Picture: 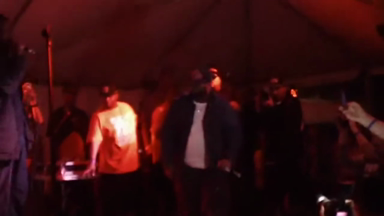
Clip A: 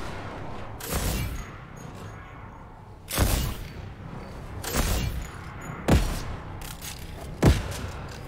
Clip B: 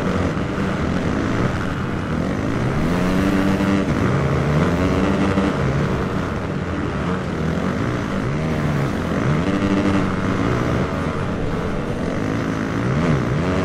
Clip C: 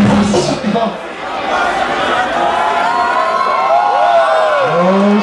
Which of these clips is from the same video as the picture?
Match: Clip C